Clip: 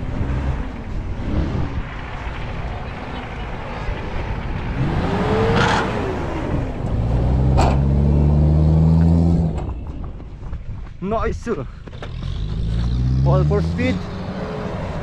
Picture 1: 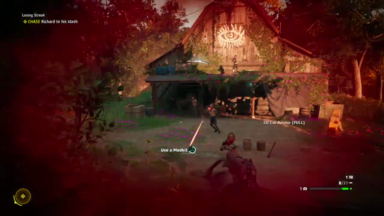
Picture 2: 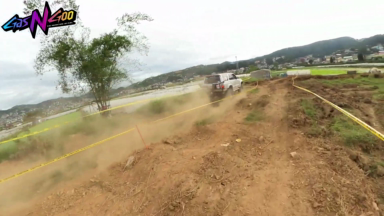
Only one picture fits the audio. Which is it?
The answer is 2